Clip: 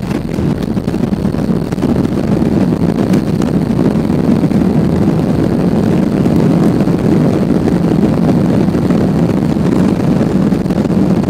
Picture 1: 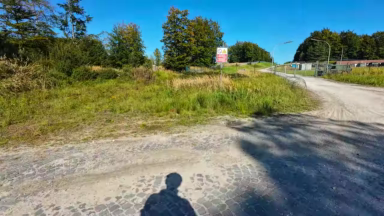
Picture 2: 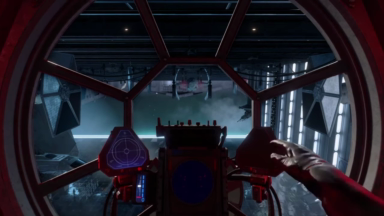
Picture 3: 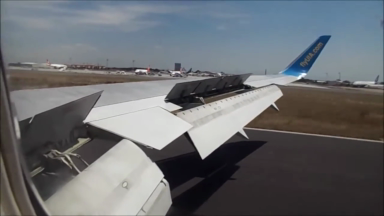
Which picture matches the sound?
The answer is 3